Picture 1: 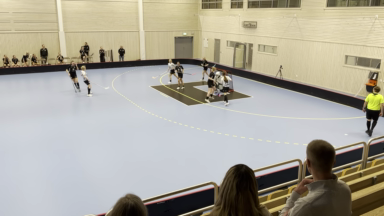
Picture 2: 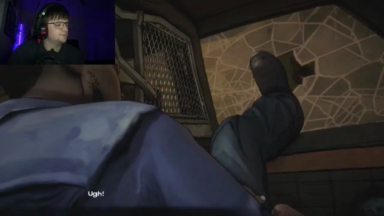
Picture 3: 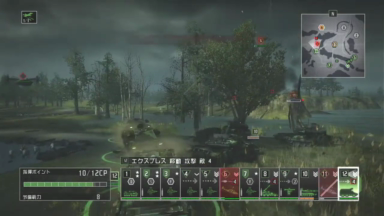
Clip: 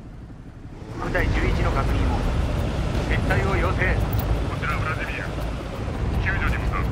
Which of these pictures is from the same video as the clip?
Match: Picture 3